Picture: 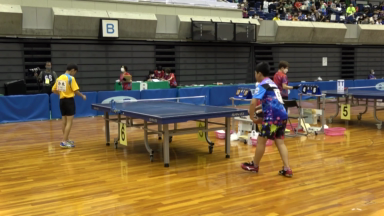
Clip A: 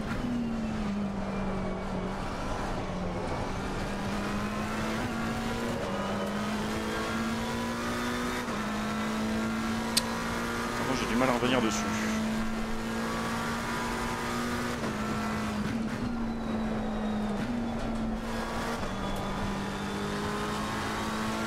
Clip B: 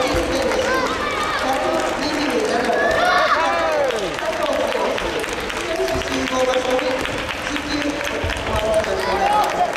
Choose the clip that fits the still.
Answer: B